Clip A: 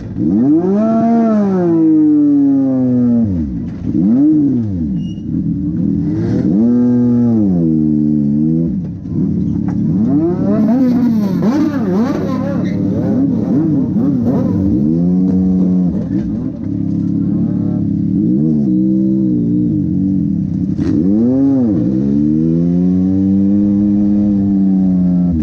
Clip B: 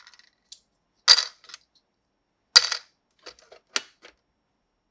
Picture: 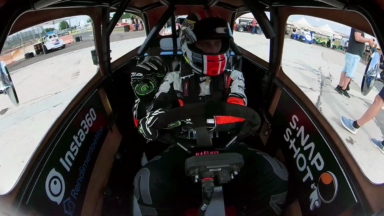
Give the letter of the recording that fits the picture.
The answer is A